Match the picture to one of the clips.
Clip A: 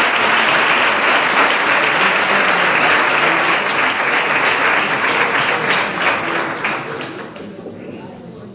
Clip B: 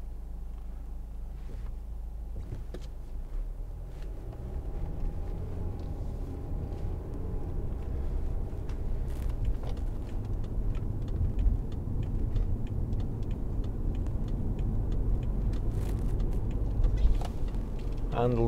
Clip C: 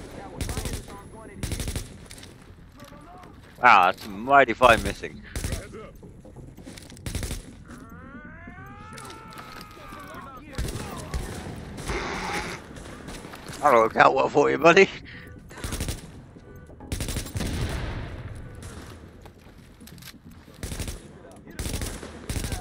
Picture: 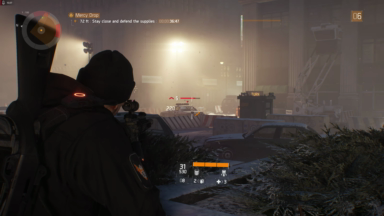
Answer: C